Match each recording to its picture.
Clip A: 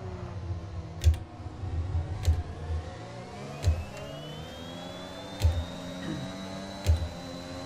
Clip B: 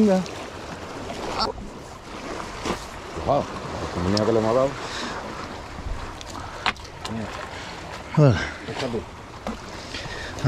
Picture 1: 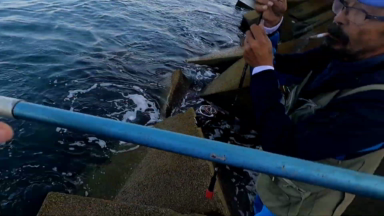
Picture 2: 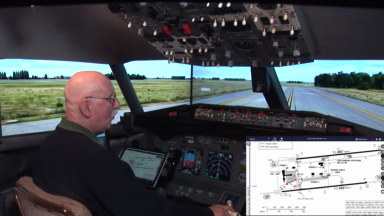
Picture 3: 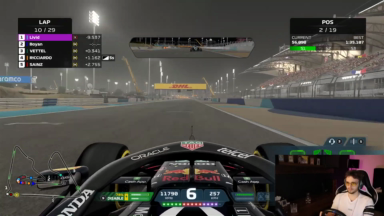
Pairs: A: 3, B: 1